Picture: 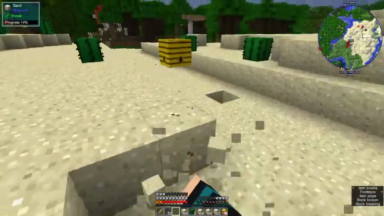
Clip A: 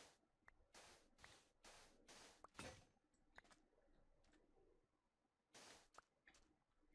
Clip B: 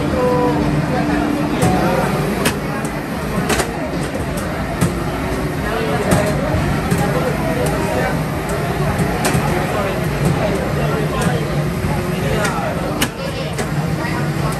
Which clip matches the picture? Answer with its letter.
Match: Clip A